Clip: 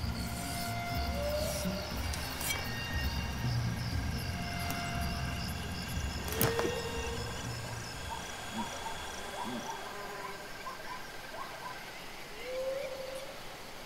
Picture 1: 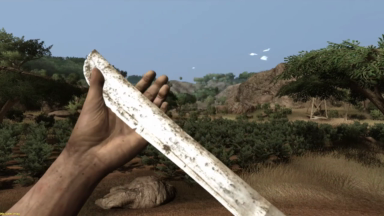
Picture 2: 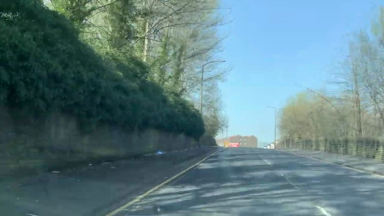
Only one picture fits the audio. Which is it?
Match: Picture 1